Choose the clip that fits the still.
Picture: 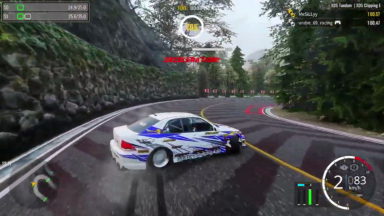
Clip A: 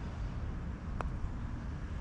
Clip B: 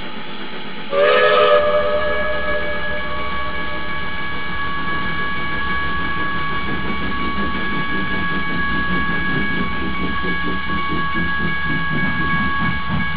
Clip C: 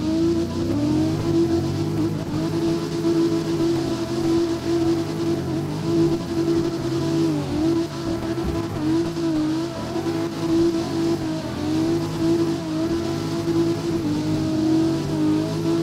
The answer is C